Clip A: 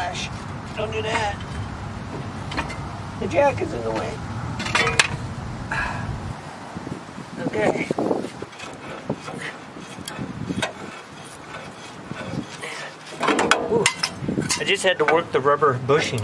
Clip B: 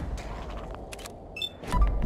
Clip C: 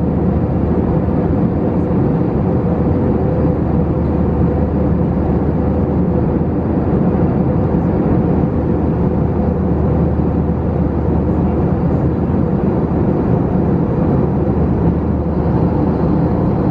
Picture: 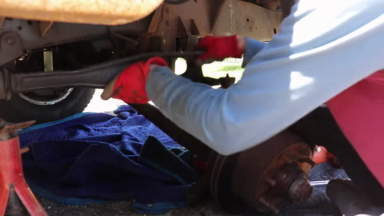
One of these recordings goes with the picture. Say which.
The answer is A